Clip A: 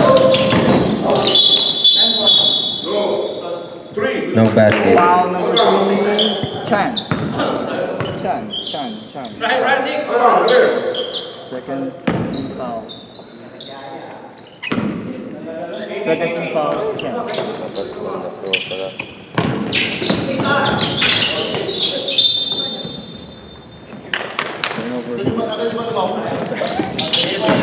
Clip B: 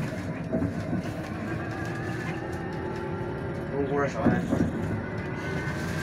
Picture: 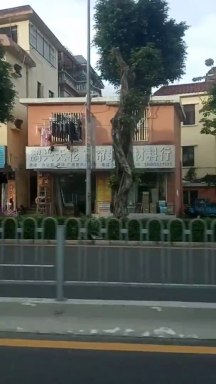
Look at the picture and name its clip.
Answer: B